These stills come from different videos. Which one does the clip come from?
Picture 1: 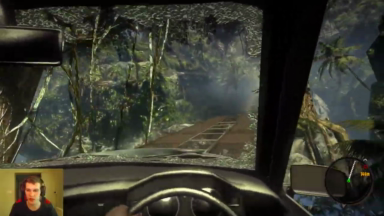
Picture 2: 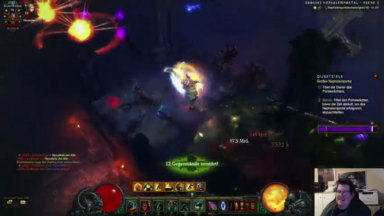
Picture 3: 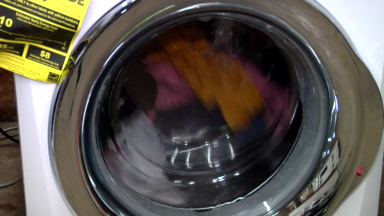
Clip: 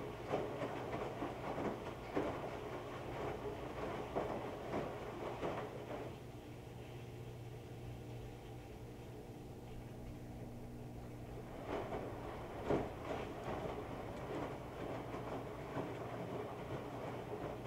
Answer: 3